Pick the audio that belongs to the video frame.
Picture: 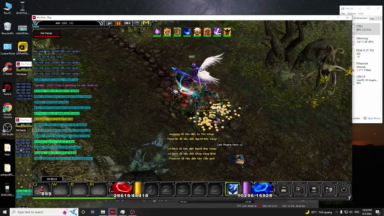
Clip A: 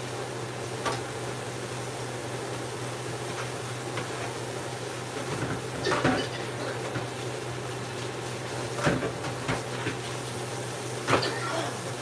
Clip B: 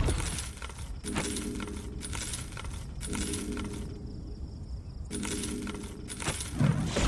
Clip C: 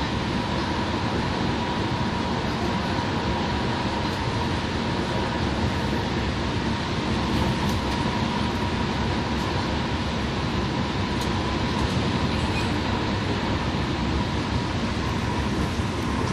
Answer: B